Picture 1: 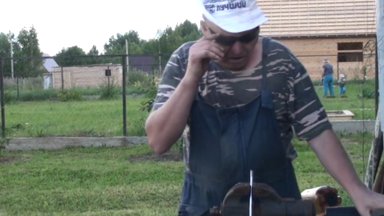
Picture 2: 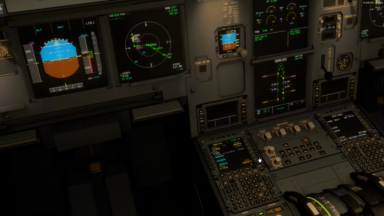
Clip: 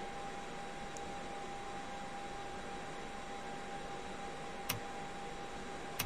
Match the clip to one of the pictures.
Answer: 2